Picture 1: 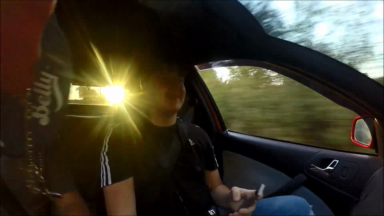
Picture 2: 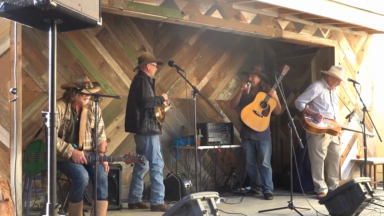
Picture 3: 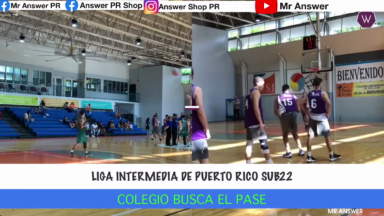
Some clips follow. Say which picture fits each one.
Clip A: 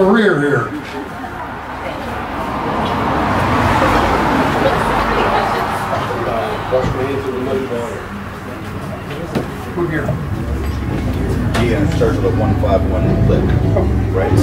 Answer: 2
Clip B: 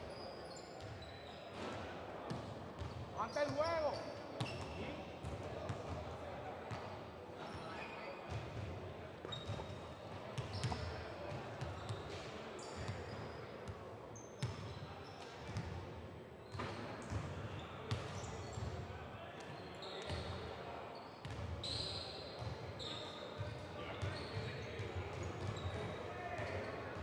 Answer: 3